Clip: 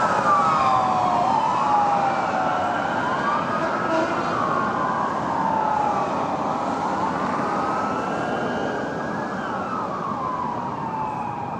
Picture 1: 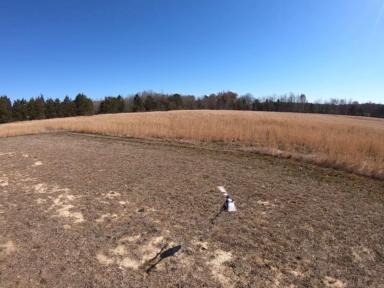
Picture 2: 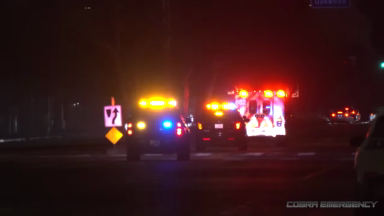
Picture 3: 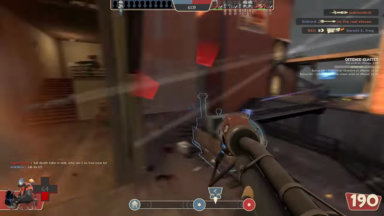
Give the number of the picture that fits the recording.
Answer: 2